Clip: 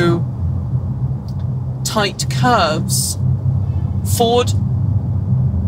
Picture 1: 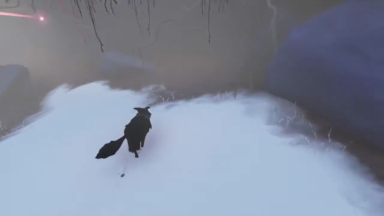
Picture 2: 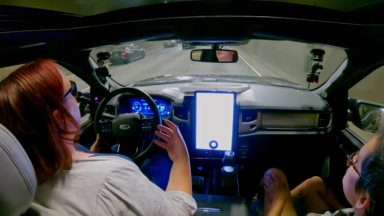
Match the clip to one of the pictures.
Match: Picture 2